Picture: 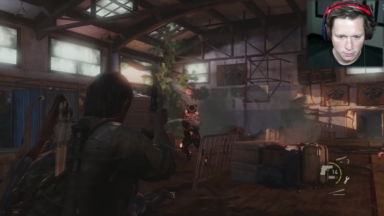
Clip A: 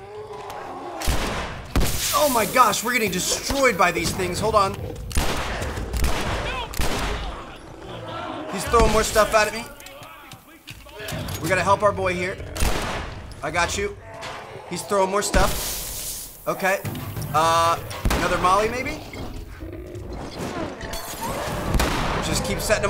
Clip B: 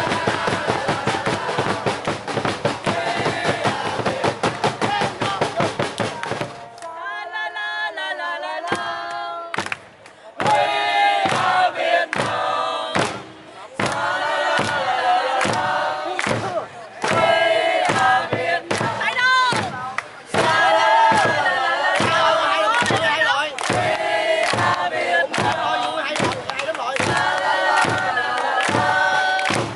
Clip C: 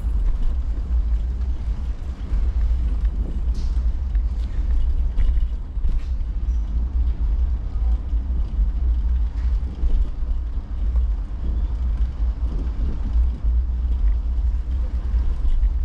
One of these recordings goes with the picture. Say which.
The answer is A